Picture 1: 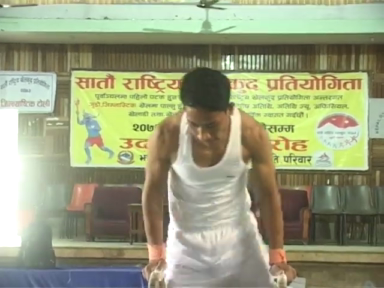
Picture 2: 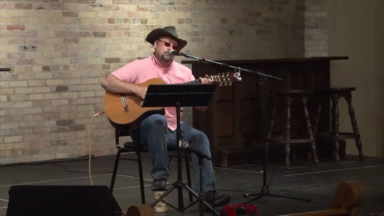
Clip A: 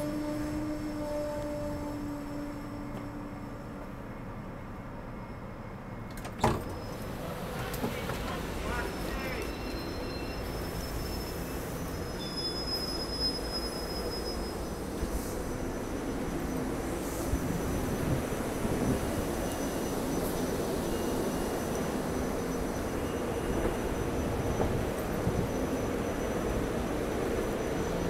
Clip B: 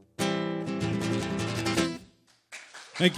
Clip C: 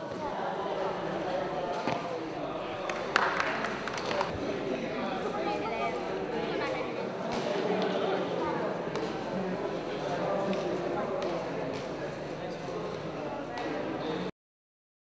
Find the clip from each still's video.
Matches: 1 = C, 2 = B